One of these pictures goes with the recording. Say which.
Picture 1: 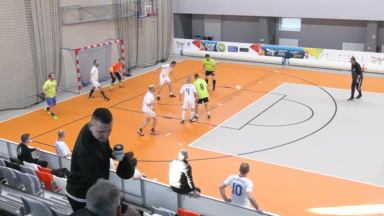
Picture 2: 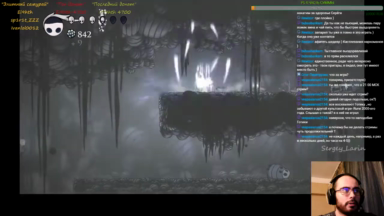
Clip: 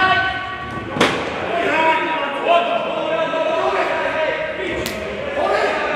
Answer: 1